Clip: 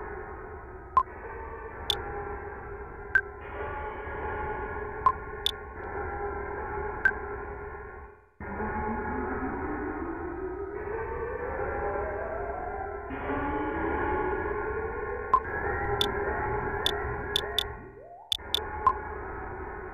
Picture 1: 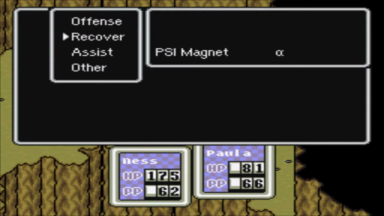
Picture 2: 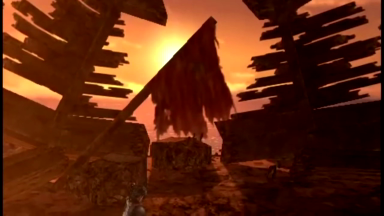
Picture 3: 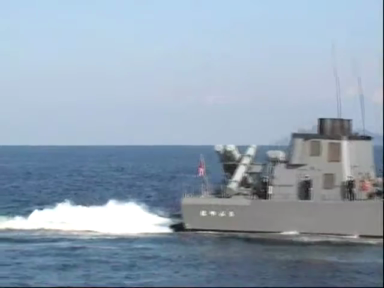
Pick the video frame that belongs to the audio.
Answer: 1